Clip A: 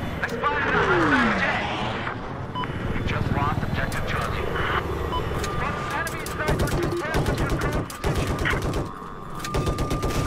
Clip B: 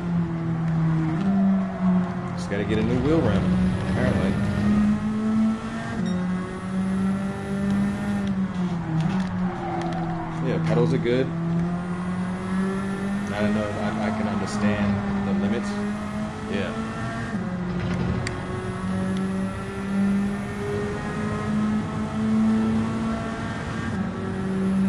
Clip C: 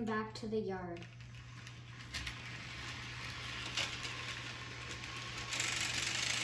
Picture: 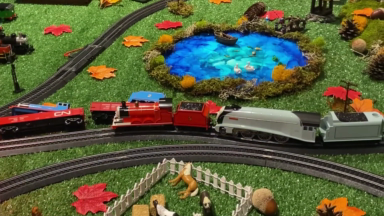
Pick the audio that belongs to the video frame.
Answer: C